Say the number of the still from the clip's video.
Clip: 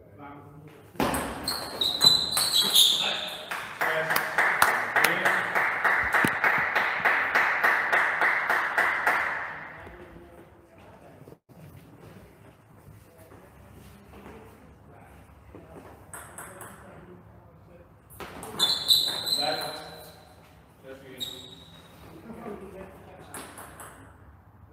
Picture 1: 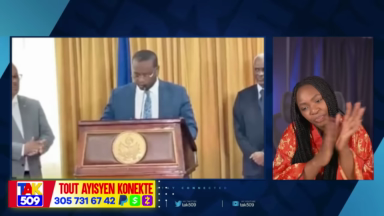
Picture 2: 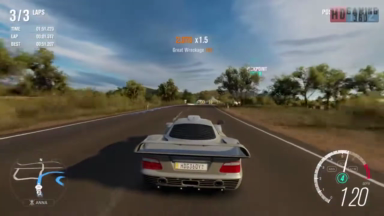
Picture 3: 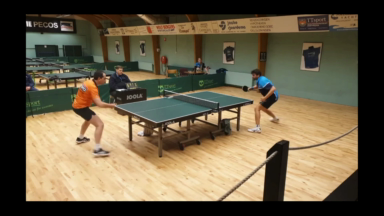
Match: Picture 3